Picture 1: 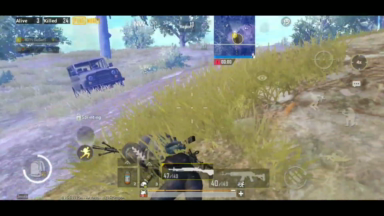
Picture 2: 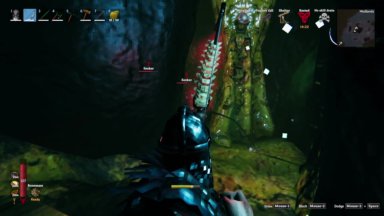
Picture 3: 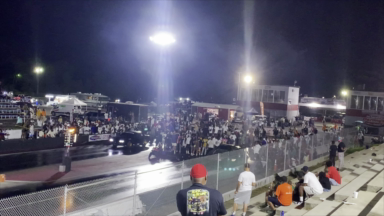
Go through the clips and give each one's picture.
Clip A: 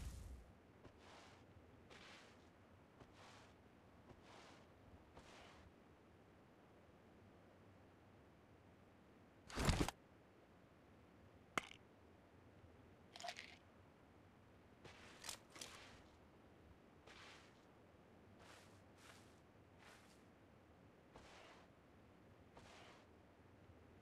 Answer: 1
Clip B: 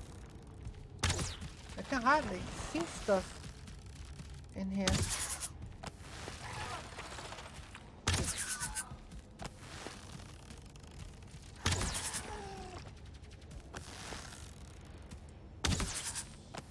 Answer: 2